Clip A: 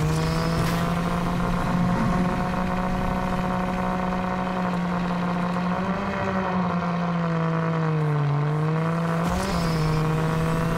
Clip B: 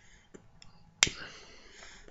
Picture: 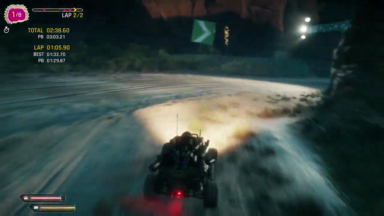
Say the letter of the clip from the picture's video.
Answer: A